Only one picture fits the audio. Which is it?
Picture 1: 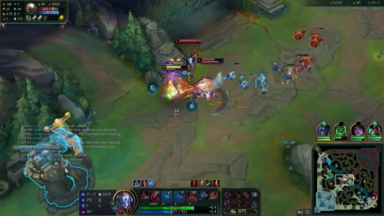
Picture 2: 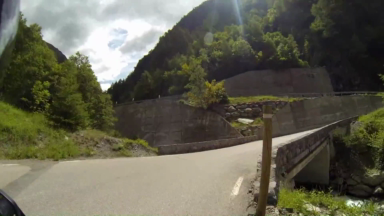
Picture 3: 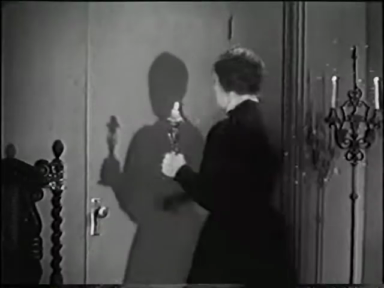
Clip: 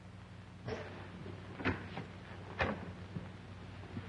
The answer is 3